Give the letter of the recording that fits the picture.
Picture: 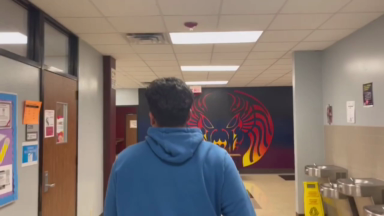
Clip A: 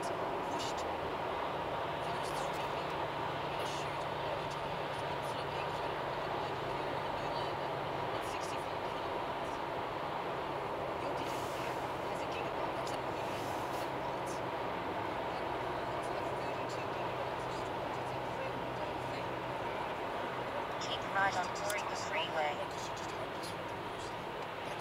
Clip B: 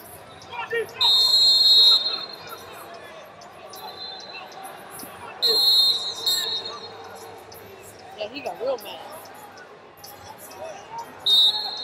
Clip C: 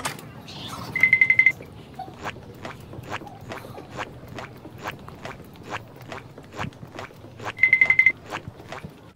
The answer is C